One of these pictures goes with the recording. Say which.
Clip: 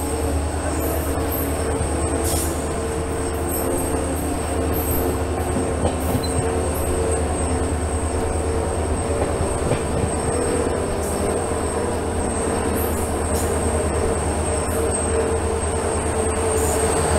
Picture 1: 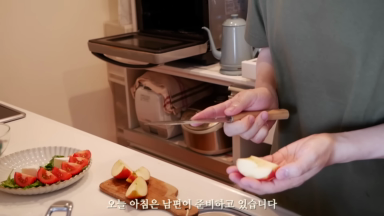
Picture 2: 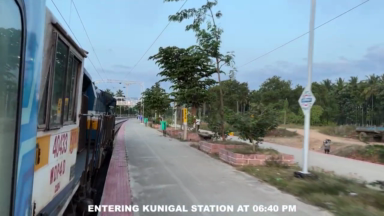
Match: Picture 2